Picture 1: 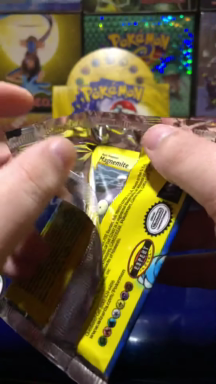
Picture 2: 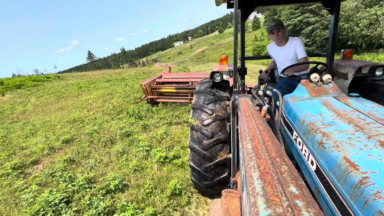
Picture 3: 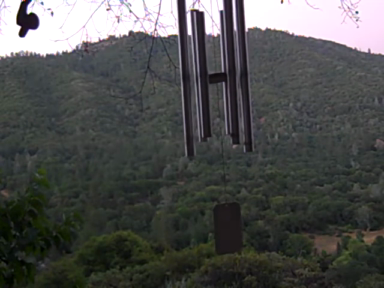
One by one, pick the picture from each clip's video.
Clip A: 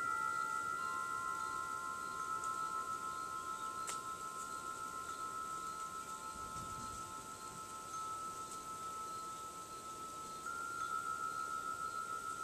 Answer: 3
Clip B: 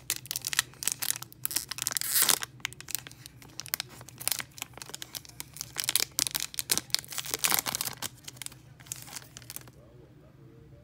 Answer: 1